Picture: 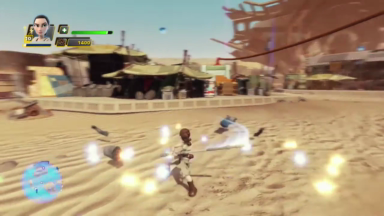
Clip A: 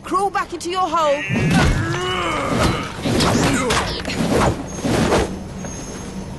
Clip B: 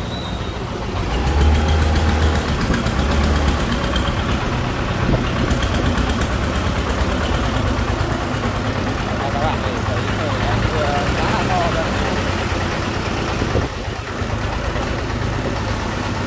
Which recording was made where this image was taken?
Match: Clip A